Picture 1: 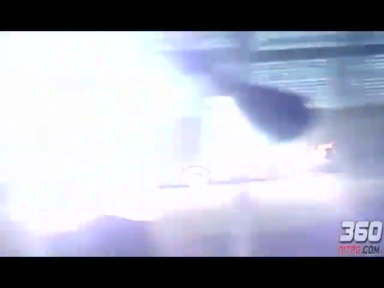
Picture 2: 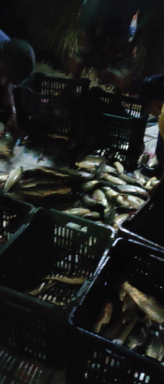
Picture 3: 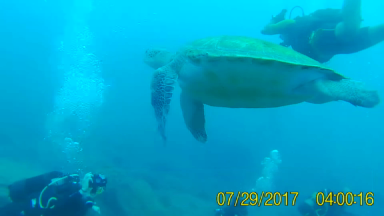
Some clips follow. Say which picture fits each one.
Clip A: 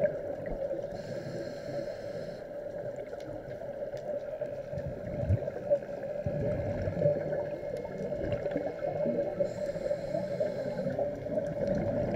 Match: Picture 3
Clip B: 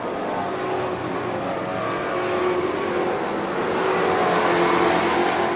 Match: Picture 1